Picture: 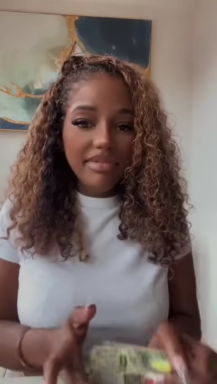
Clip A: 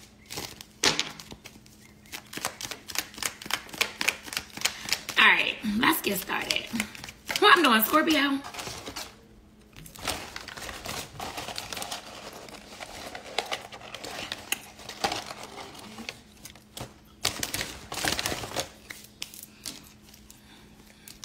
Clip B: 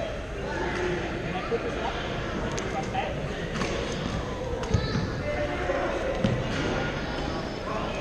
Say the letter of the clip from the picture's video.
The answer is A